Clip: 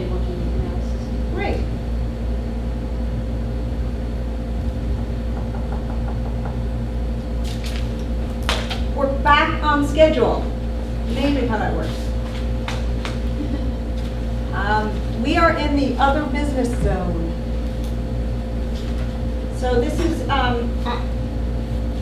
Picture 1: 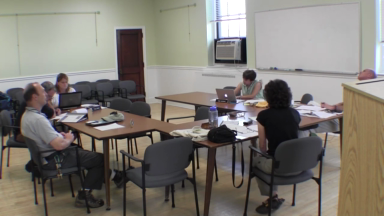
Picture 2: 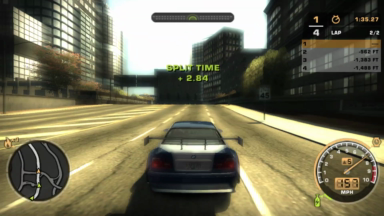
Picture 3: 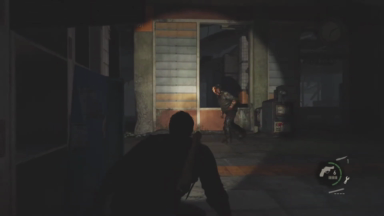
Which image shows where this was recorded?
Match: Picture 1